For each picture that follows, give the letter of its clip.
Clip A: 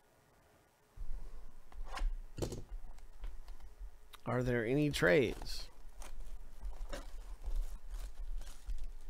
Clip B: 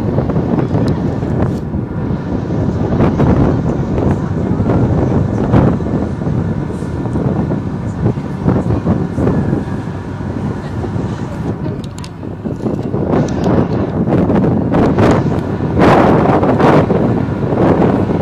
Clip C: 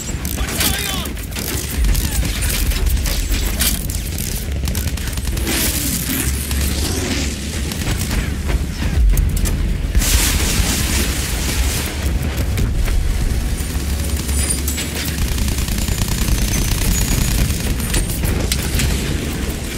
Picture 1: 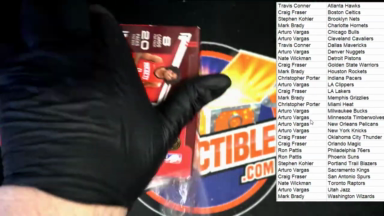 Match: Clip A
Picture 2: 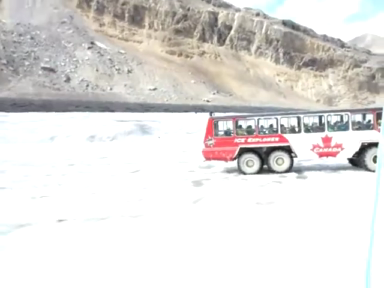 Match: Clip B